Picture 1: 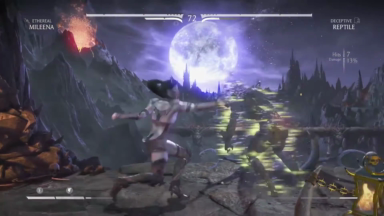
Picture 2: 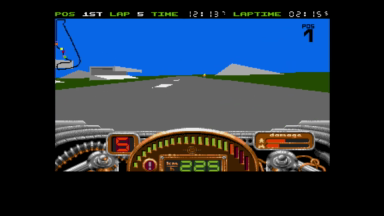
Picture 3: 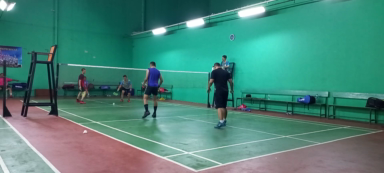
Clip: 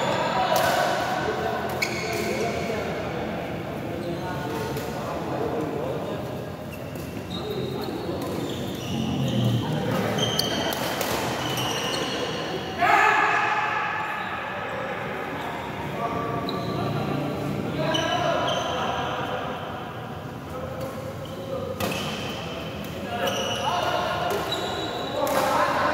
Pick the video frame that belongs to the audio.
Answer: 3